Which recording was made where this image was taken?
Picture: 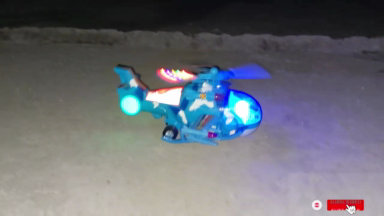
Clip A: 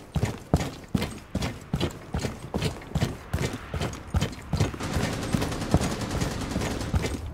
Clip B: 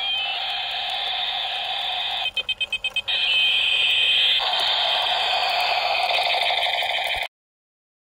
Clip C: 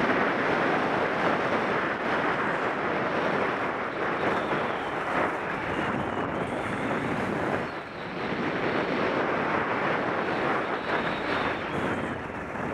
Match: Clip B